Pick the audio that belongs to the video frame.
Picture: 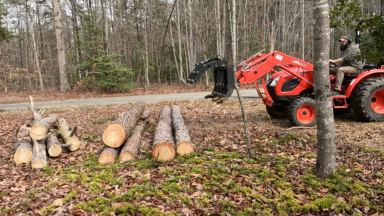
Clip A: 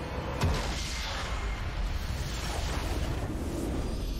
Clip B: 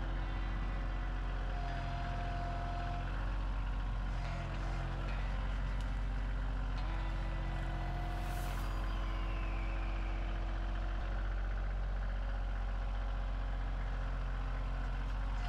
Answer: B